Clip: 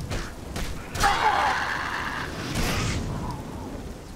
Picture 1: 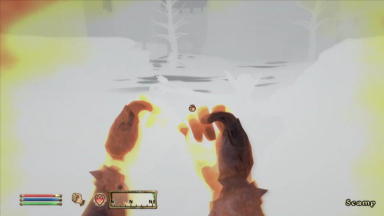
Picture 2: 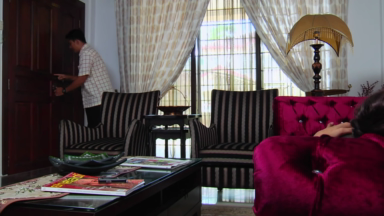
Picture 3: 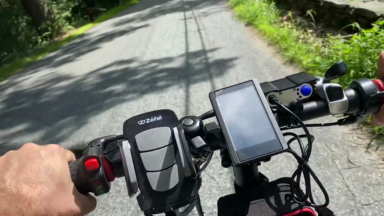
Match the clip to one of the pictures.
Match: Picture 1